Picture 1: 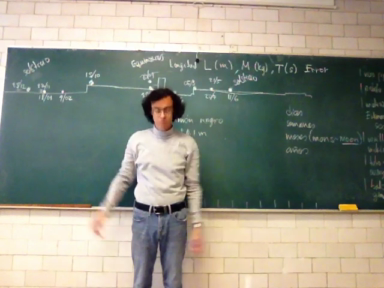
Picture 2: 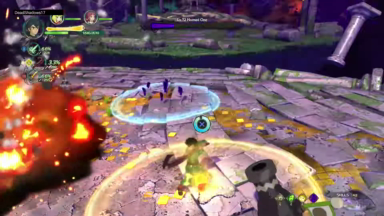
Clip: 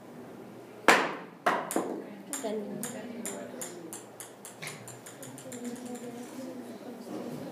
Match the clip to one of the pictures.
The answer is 1